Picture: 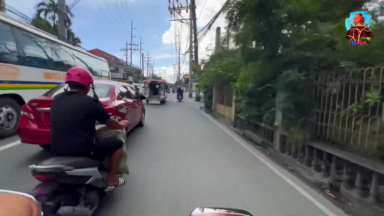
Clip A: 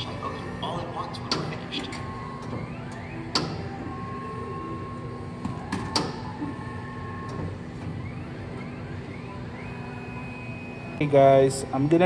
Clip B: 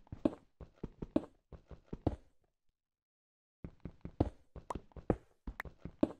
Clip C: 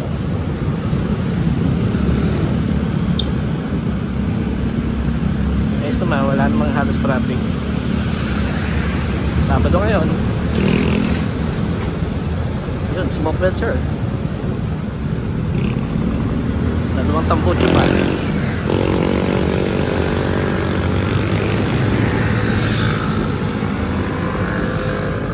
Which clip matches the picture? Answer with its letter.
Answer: C